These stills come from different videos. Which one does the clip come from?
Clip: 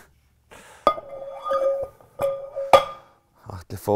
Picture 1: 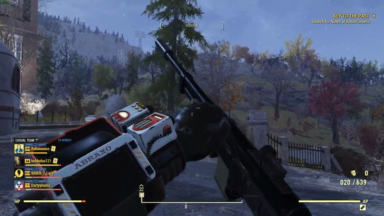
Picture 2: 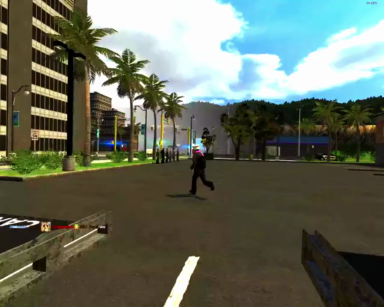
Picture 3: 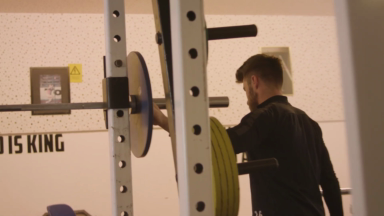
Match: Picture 3